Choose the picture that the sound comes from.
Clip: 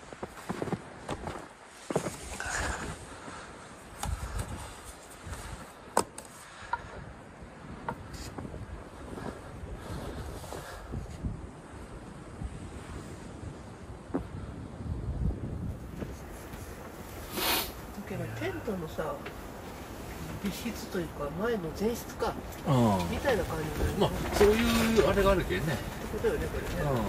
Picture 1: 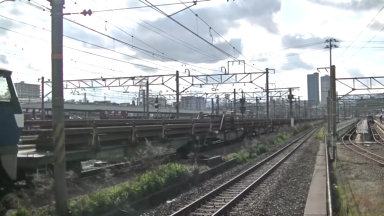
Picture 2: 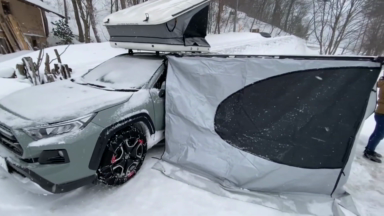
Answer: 2